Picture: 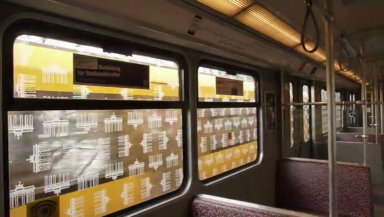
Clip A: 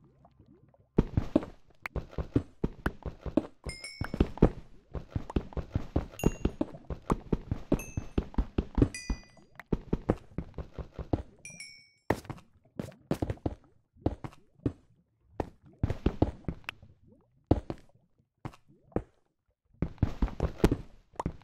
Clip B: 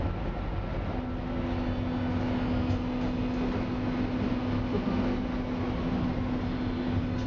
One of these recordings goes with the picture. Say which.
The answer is B